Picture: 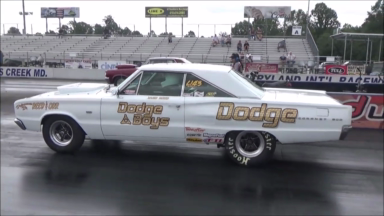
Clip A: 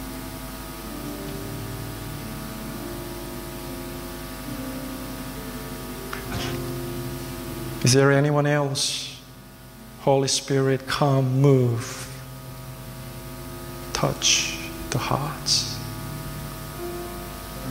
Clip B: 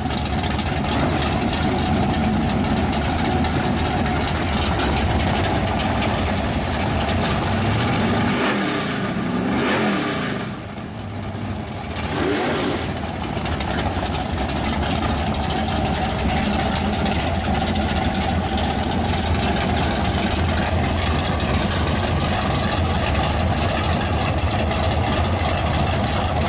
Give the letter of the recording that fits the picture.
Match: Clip B